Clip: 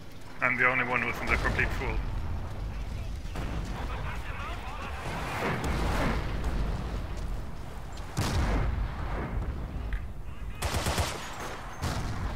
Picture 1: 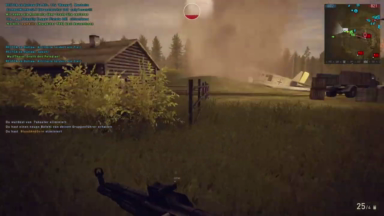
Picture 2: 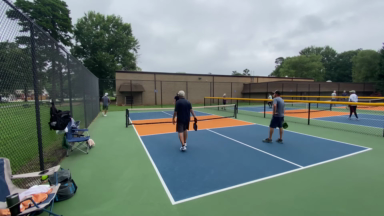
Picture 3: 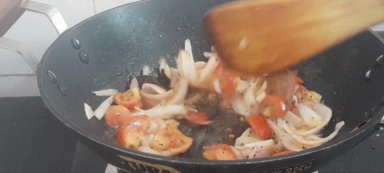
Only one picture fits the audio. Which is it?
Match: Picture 1